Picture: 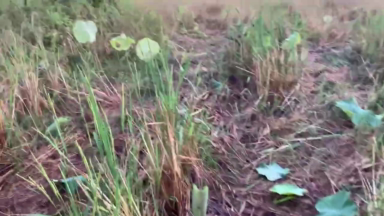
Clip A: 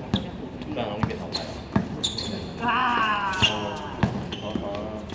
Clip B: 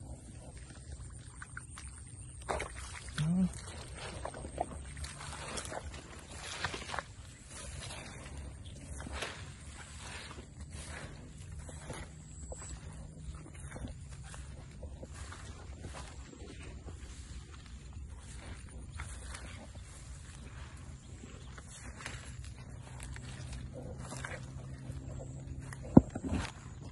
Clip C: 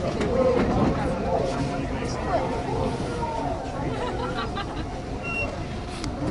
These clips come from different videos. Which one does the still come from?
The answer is B